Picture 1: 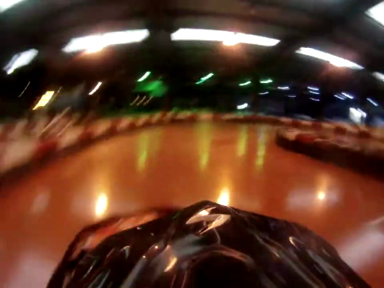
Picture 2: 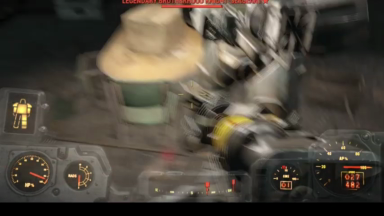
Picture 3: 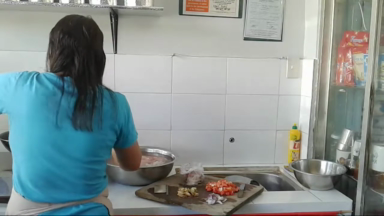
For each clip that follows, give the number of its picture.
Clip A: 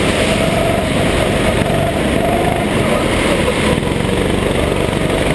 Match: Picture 1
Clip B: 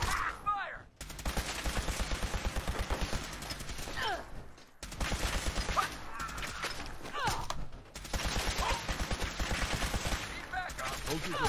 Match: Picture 2